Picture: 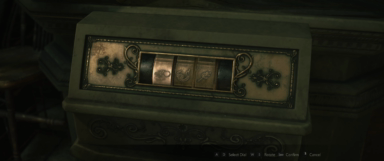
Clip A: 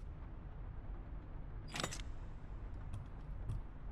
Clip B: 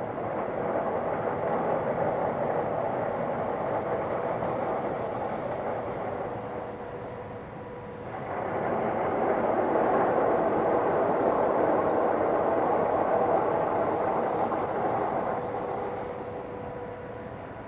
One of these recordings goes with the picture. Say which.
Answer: A